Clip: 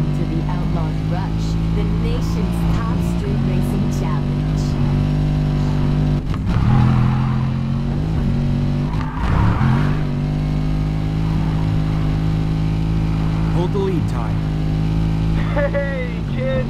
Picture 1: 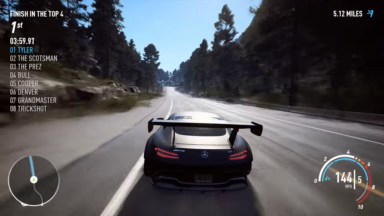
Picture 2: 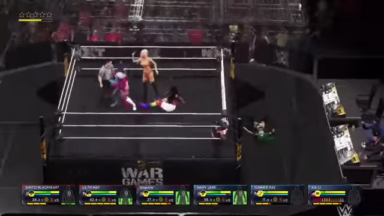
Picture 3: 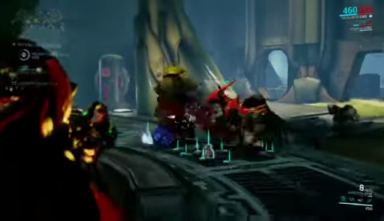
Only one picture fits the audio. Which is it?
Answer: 1